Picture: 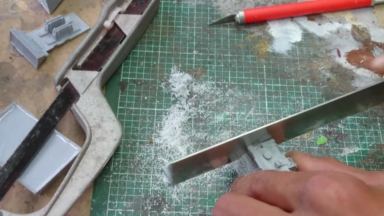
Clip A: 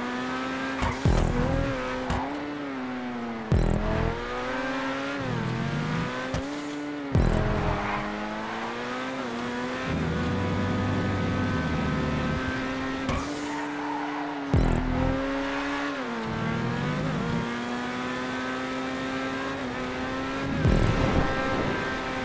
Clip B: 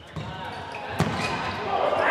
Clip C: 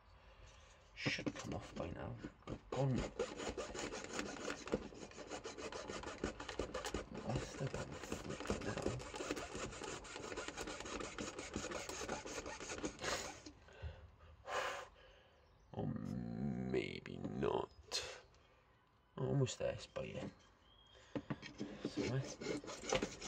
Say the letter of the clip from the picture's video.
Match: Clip C